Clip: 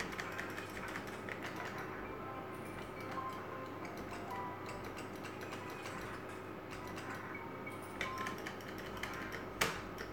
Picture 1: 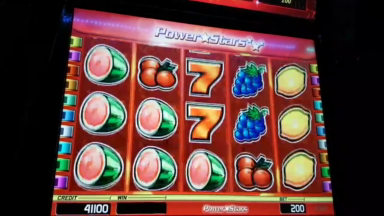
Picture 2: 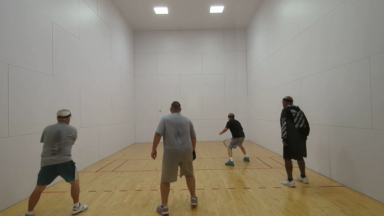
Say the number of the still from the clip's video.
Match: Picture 1